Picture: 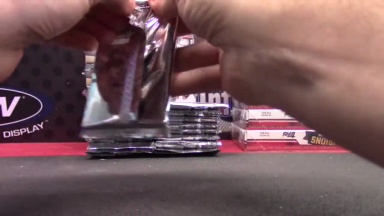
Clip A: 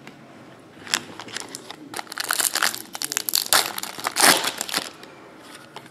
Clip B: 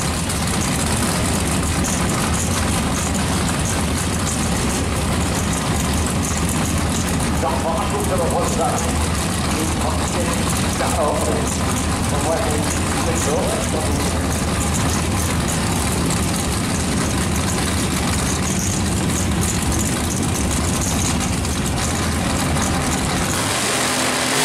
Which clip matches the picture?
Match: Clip A